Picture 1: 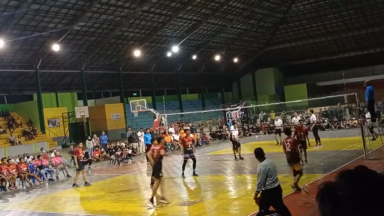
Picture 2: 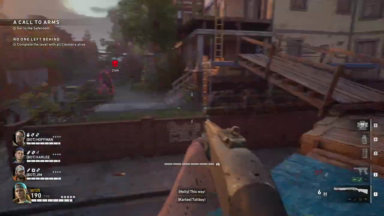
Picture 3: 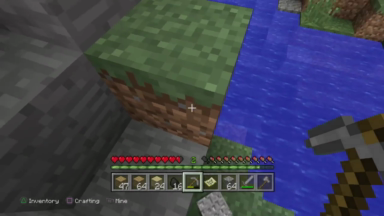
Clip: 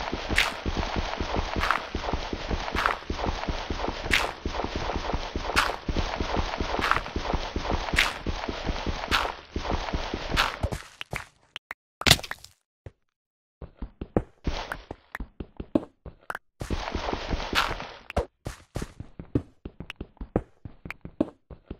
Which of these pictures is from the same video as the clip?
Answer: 3